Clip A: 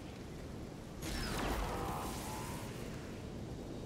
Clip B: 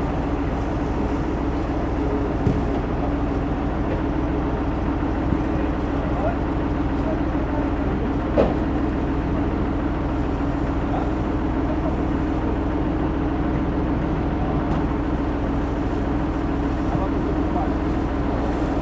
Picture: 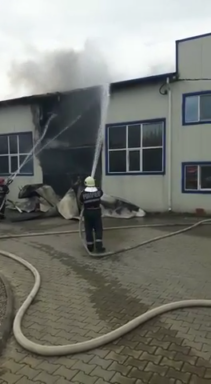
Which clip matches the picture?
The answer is B